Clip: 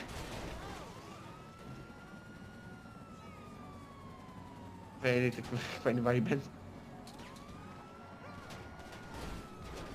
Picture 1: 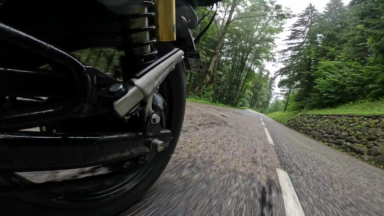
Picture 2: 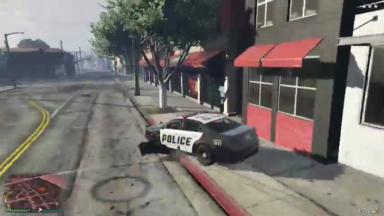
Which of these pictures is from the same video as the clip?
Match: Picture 2